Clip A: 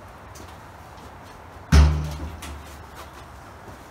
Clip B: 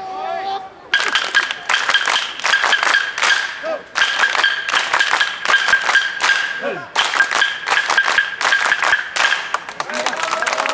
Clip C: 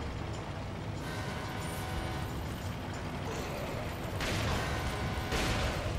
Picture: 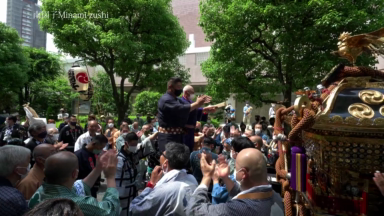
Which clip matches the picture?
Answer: B